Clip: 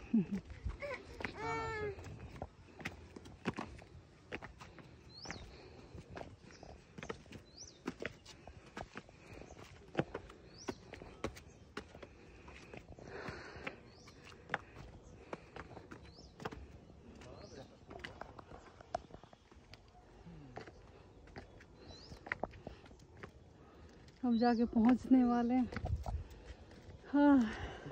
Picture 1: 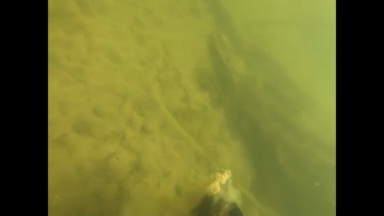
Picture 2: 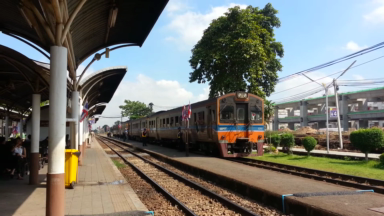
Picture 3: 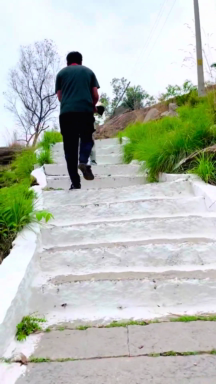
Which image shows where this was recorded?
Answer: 3